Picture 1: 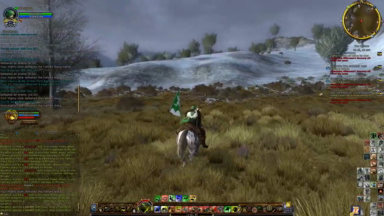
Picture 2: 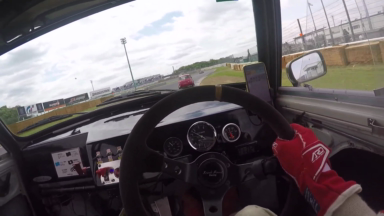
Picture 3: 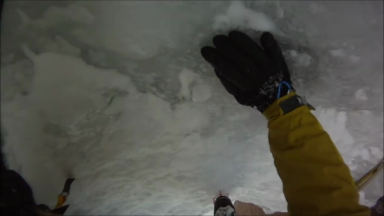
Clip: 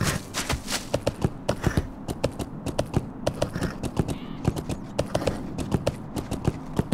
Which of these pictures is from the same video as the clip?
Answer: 1